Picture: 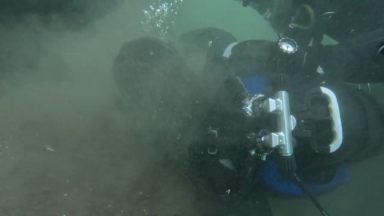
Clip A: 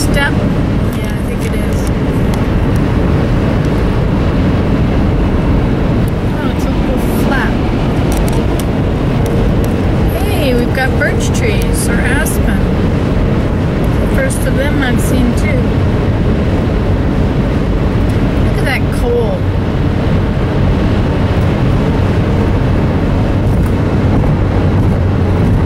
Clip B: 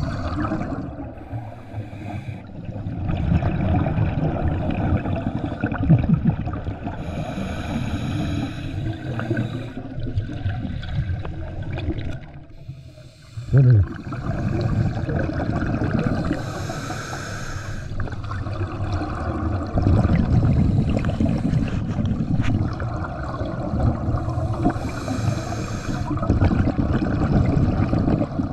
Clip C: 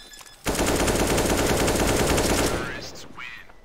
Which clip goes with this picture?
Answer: B